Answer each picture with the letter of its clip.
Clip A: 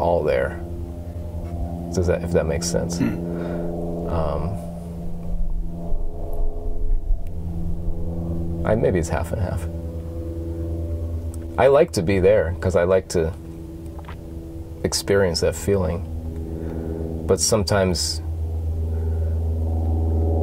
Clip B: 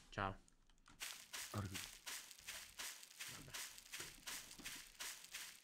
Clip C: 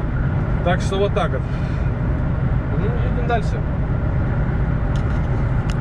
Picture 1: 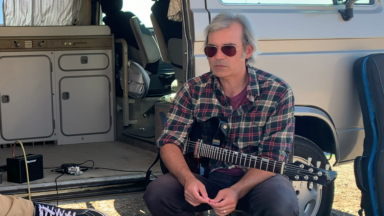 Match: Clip A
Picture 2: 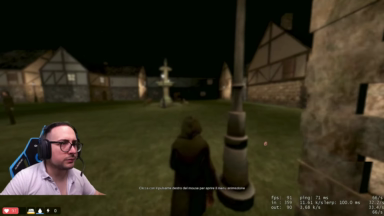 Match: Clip B